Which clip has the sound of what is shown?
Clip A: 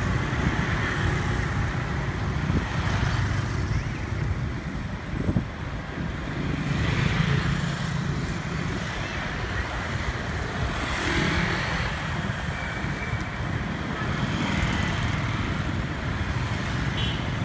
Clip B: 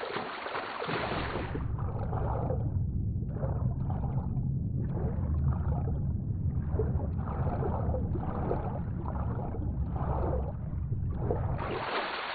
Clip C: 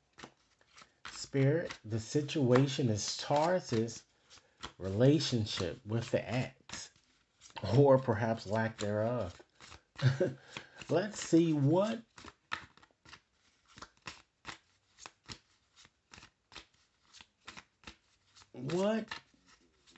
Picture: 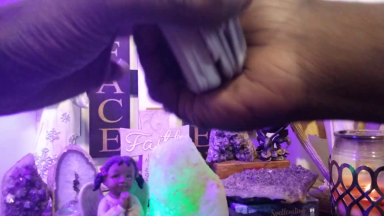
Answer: C